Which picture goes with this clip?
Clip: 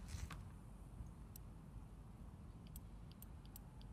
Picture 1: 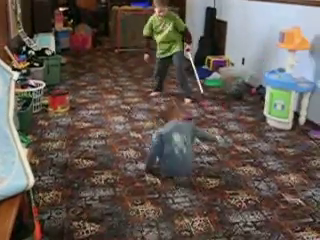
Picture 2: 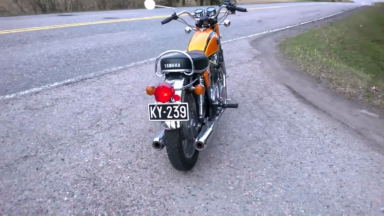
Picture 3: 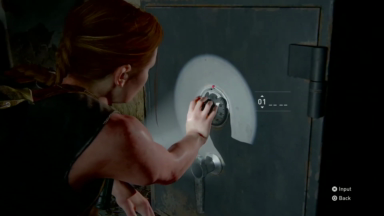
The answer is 3